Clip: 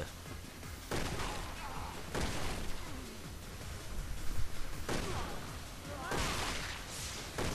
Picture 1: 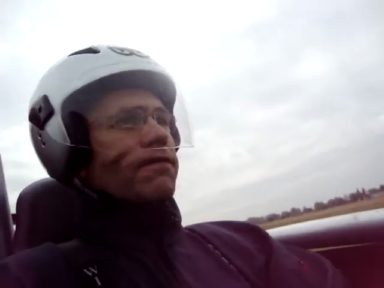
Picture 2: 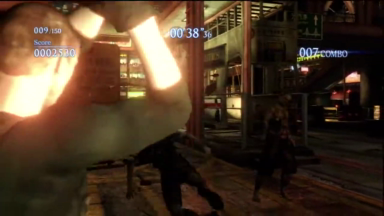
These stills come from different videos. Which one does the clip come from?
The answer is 2